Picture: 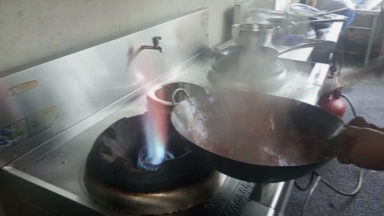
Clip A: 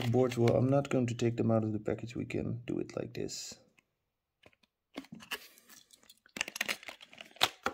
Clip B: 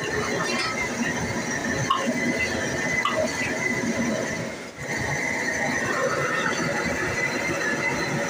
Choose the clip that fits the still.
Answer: B